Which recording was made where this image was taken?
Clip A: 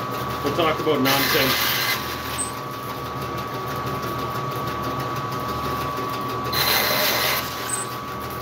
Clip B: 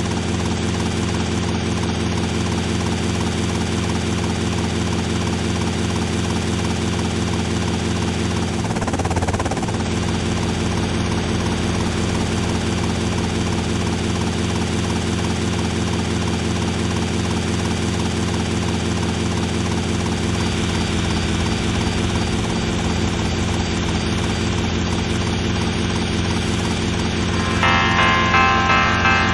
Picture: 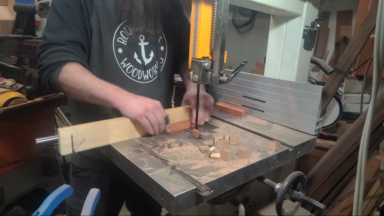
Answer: A